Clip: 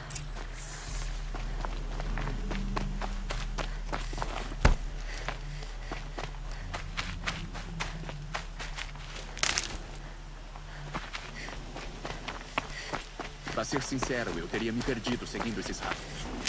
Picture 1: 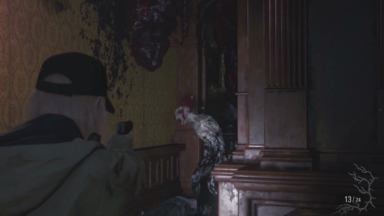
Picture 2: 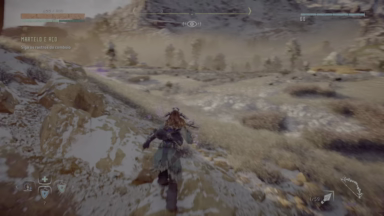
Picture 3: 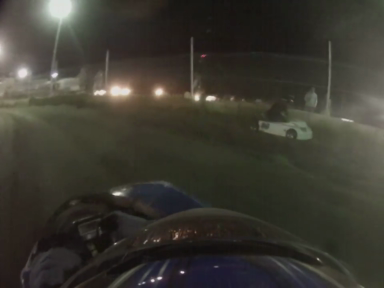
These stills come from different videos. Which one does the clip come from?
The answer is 2